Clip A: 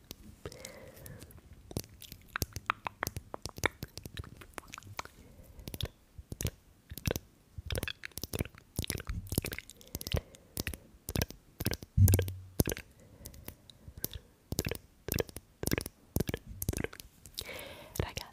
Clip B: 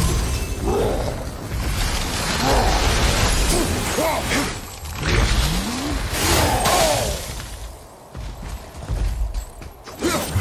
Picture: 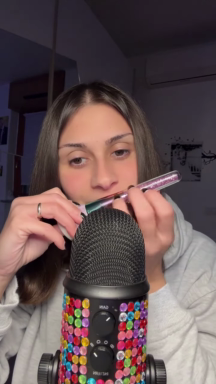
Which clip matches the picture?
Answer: A